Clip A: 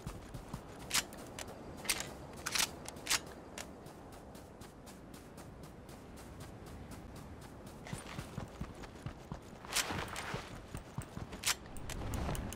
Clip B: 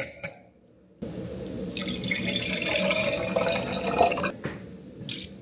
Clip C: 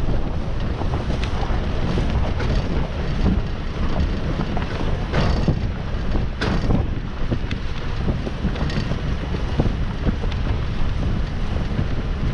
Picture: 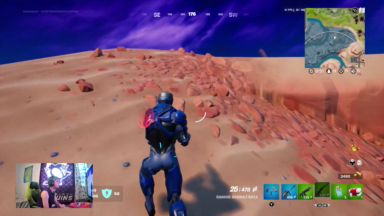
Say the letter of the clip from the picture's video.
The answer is A